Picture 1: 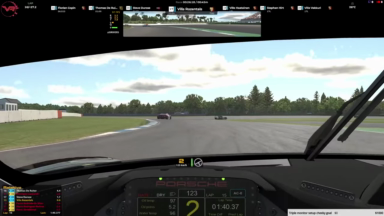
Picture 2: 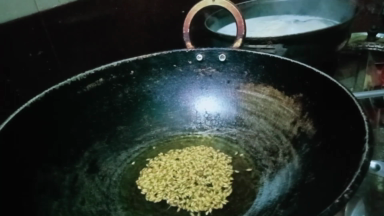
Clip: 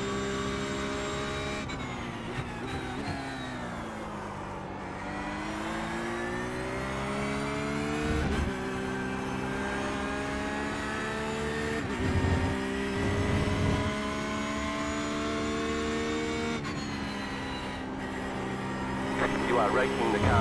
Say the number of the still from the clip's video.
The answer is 1